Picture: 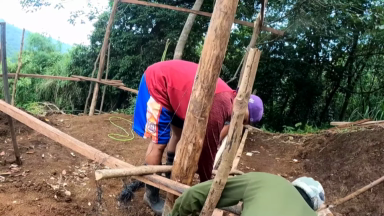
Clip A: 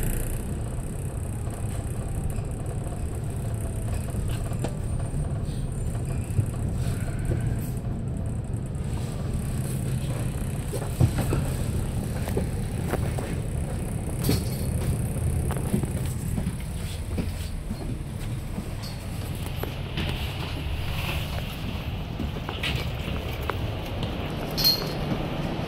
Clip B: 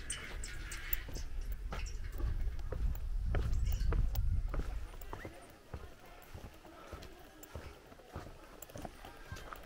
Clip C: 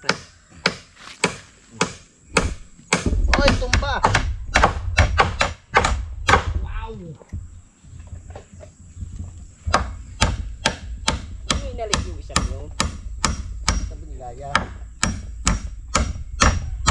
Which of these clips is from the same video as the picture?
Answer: C